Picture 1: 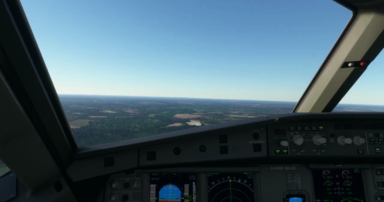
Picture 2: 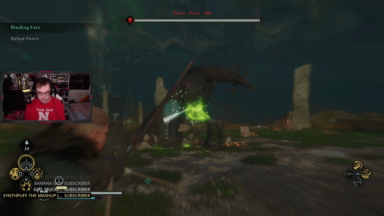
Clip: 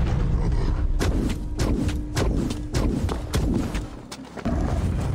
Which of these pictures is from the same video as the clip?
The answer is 2